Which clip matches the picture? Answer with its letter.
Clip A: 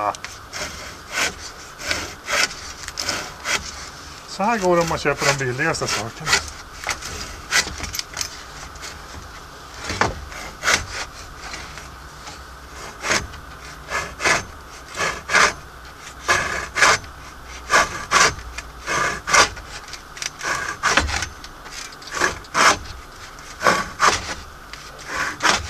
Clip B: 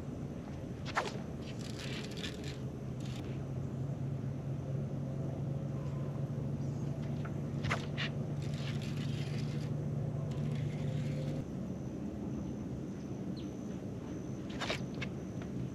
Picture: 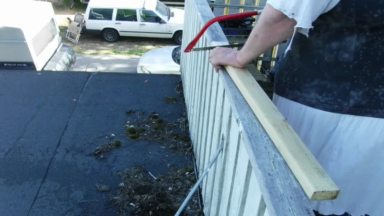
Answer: A